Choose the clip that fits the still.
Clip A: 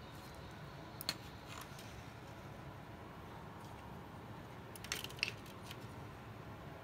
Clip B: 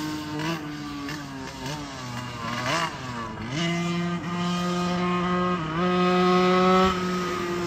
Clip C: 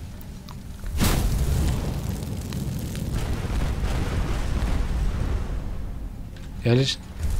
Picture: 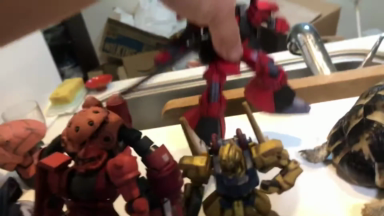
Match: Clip A